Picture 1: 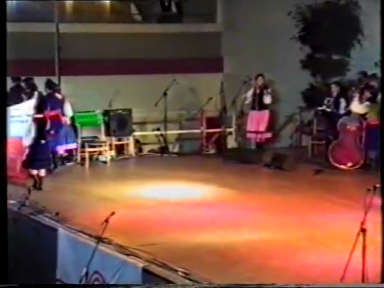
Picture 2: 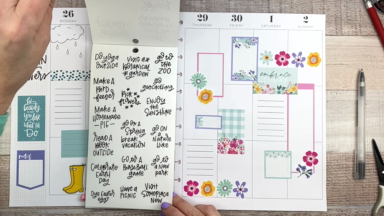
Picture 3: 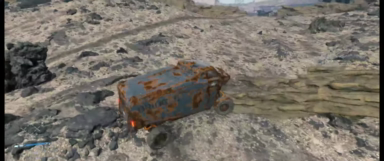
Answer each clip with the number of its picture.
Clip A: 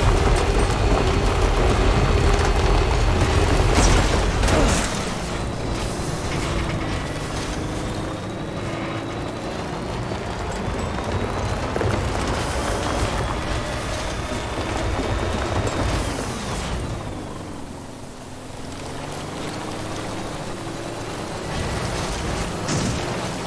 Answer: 3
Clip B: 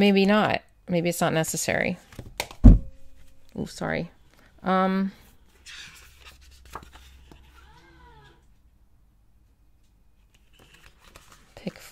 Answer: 2